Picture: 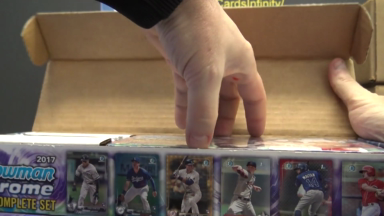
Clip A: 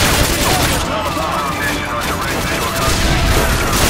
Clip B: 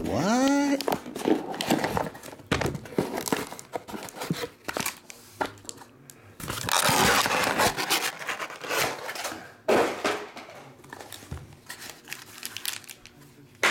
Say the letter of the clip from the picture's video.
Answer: B